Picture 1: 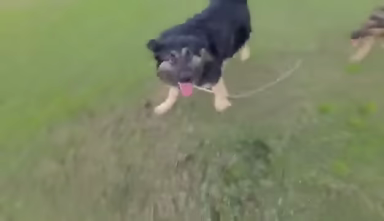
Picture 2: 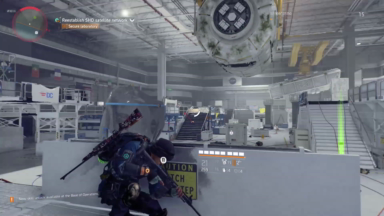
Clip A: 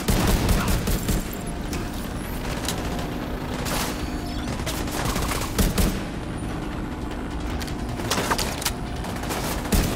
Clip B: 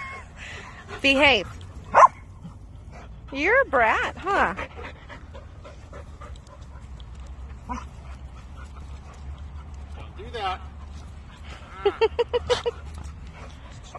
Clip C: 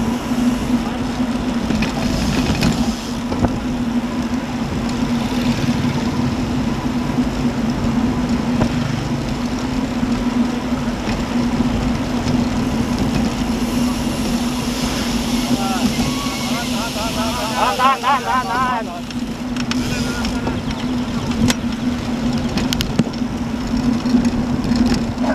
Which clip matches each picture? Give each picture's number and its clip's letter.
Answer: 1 B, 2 A